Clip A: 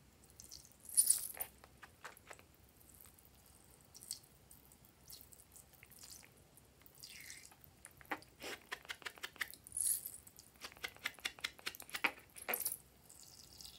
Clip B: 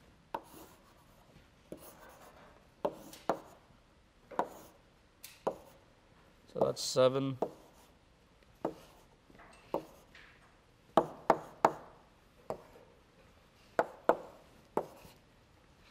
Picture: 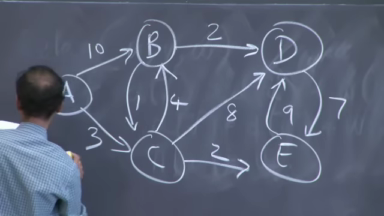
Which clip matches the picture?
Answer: B